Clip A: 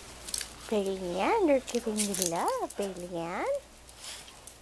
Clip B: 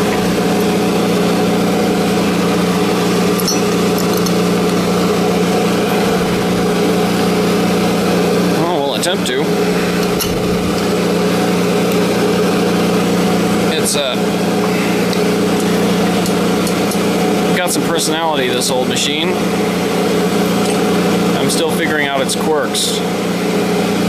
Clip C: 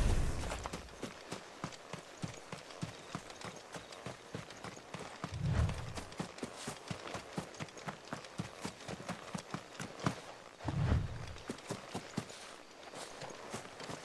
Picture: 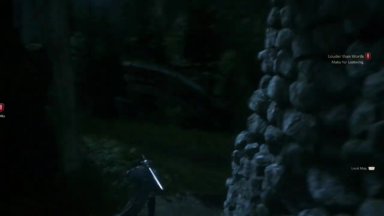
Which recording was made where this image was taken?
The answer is C